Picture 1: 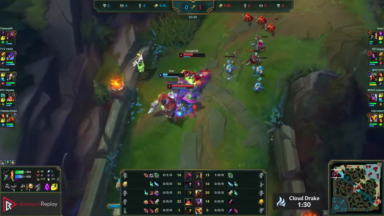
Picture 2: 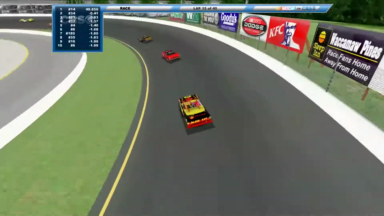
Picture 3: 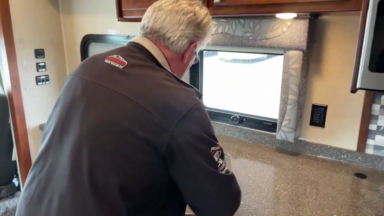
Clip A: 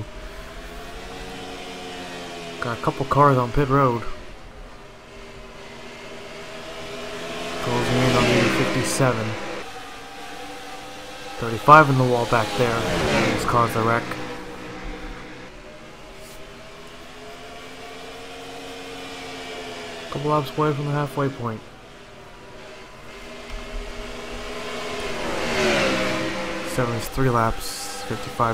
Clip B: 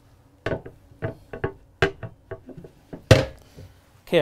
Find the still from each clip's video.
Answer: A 2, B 3